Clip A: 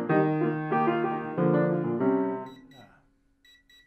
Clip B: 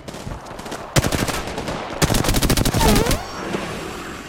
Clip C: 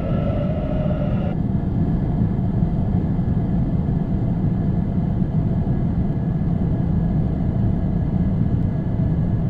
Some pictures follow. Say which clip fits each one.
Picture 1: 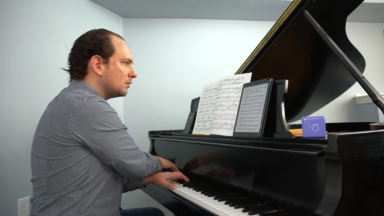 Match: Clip A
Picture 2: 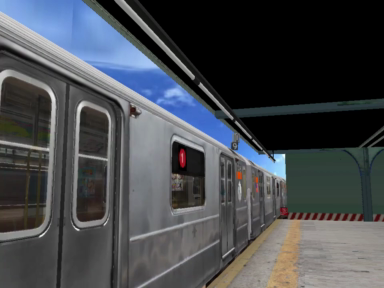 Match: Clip C